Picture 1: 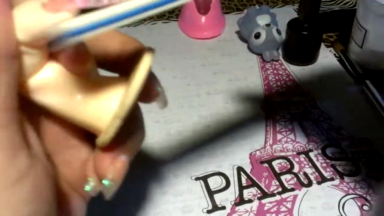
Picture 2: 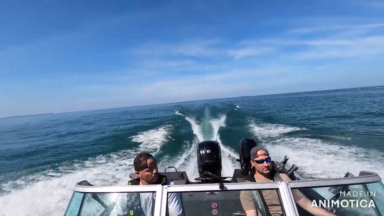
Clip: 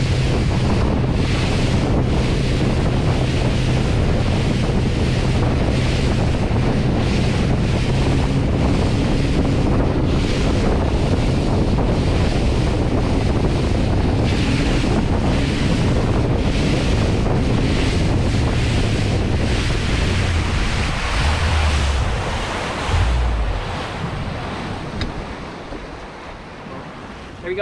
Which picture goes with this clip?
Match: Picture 2